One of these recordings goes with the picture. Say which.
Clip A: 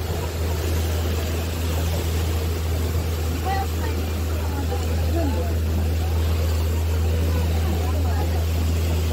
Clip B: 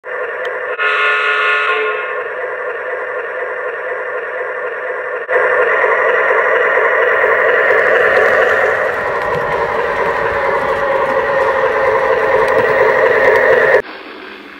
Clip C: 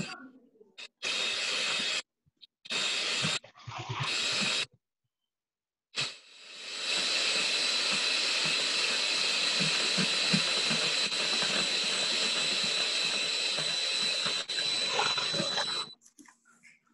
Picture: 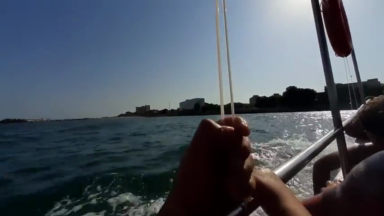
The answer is A